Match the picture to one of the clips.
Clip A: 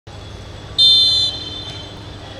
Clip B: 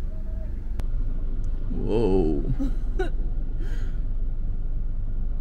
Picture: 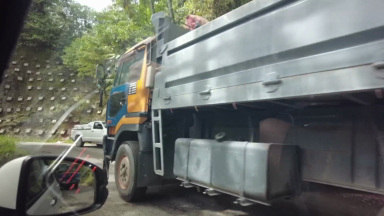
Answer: B